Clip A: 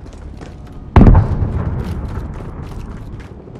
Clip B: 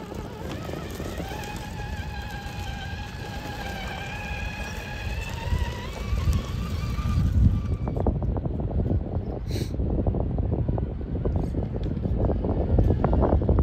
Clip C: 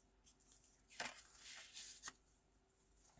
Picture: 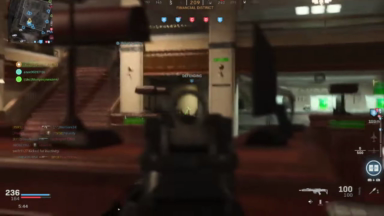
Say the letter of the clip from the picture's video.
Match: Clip A